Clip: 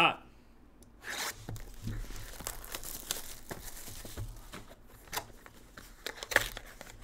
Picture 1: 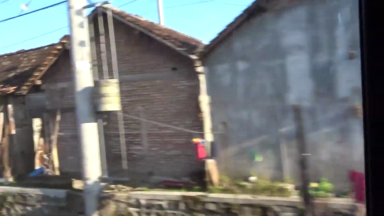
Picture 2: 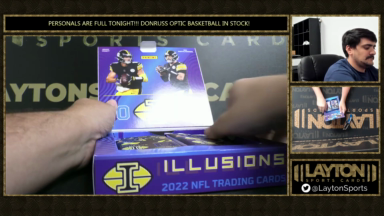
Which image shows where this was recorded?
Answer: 2